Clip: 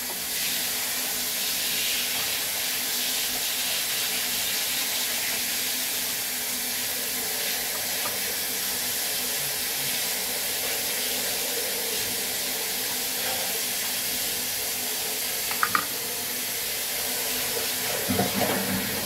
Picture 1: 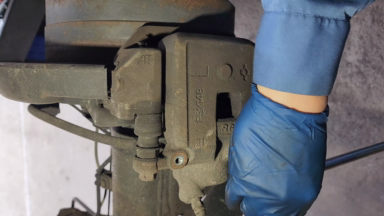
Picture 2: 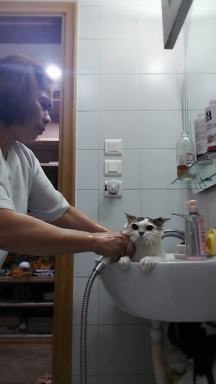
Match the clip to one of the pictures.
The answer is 2